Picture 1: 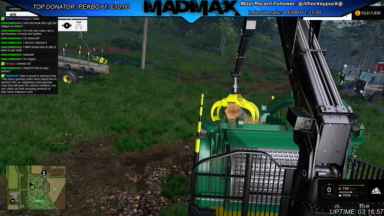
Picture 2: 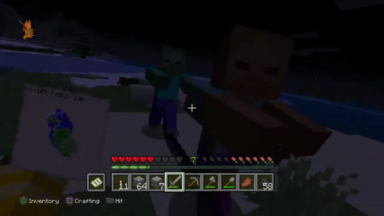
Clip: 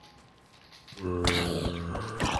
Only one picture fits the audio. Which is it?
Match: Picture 2